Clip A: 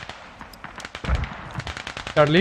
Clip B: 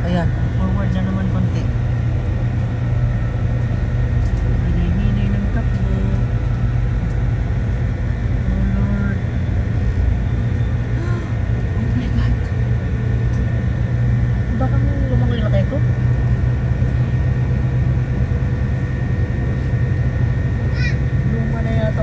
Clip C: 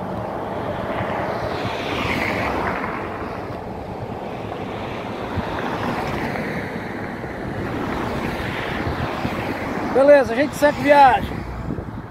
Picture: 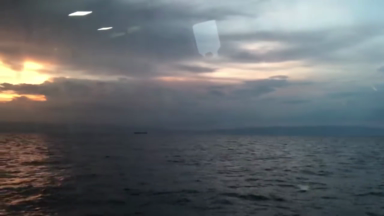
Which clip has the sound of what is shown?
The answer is B